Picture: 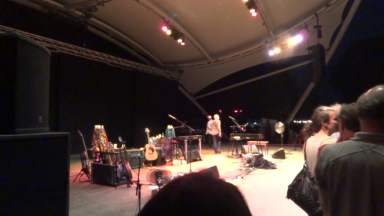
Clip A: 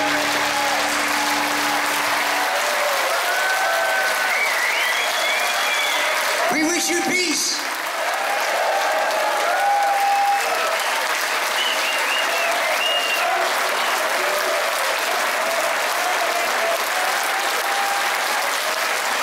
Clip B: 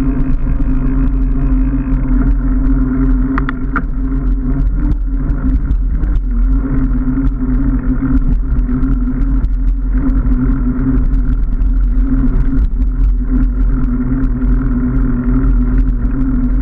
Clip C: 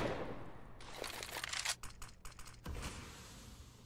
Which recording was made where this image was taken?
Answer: A